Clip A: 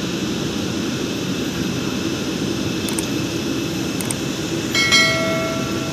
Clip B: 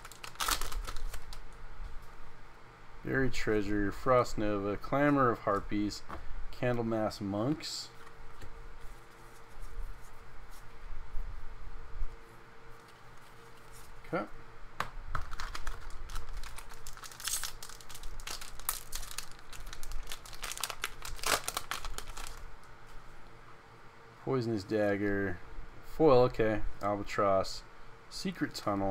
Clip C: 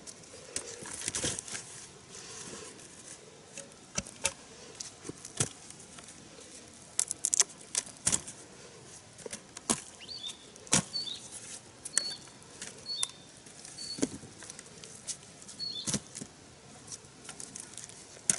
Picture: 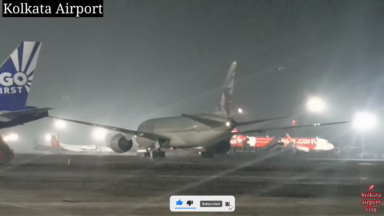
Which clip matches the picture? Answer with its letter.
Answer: A